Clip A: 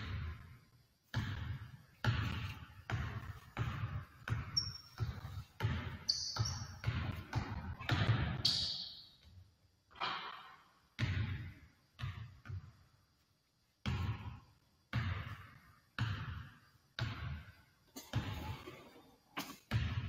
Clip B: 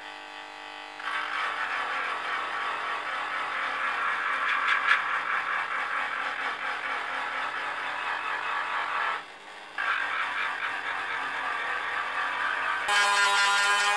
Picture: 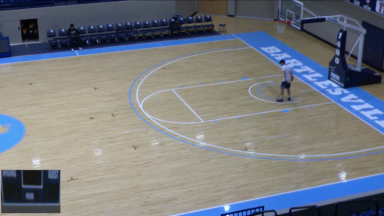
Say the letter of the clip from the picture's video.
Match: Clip A